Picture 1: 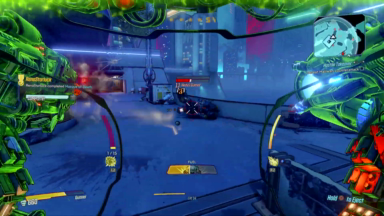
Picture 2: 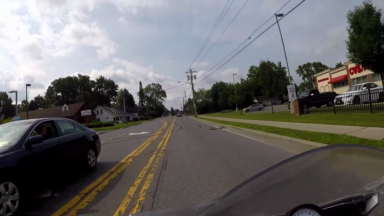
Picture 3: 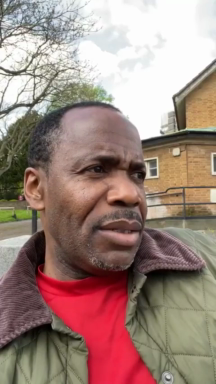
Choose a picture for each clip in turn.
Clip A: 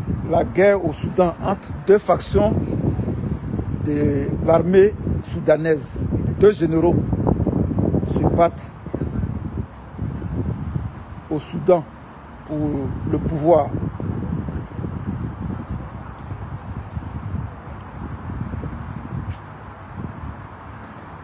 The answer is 3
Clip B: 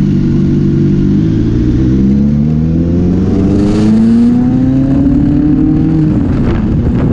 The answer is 2